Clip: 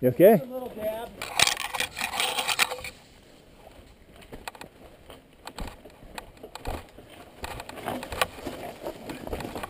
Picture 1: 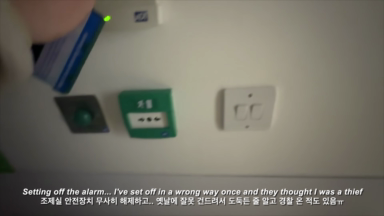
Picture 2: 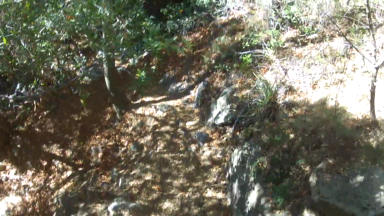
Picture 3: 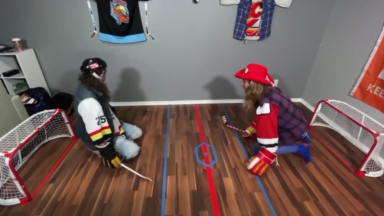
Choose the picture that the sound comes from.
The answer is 2